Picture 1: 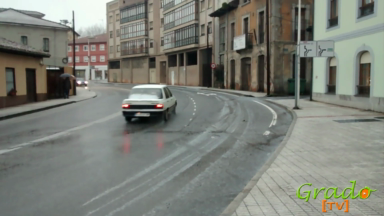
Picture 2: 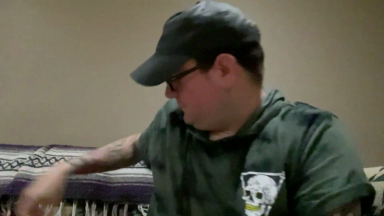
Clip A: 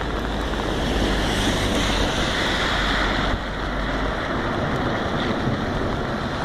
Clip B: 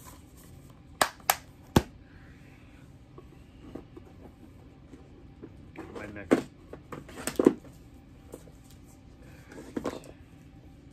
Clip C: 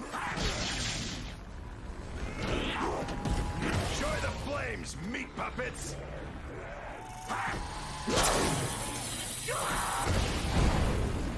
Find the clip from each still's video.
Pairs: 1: A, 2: B